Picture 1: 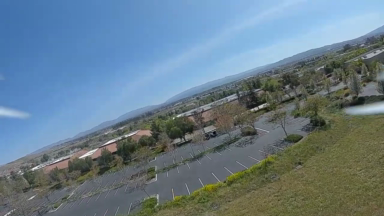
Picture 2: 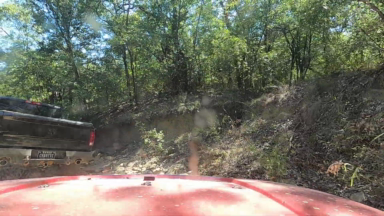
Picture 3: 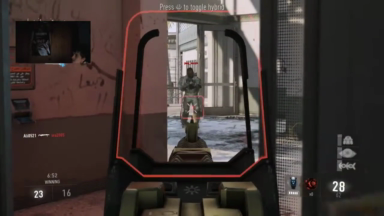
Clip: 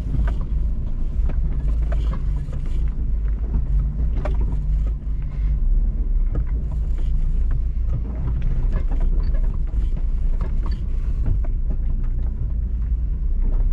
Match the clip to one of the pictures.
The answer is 2